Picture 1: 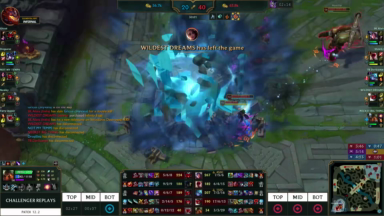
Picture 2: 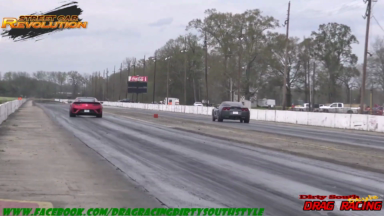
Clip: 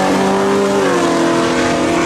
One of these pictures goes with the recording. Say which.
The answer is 2